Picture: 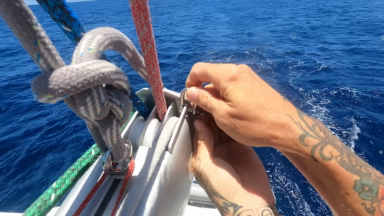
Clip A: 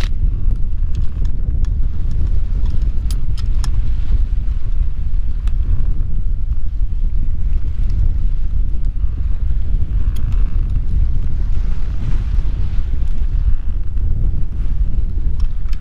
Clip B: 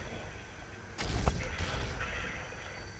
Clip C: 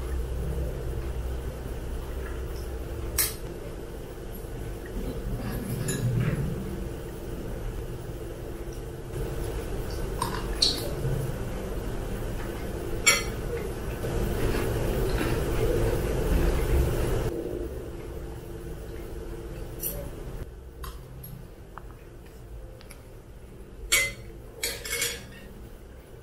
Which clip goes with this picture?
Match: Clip A